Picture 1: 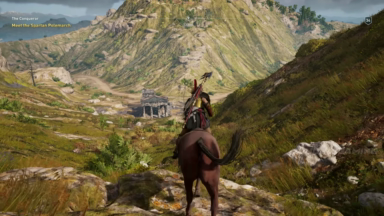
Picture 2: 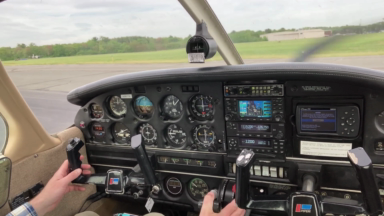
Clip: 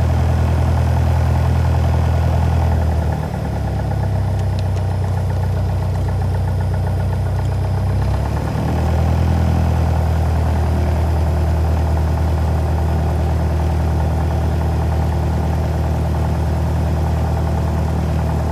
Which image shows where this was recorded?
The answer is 2